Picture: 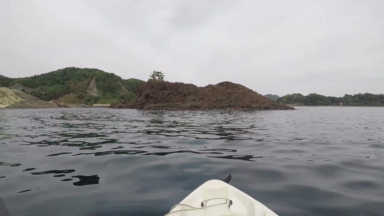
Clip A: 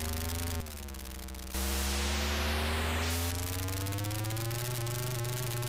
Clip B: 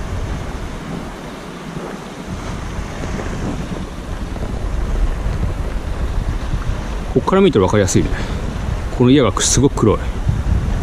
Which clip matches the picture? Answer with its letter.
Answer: B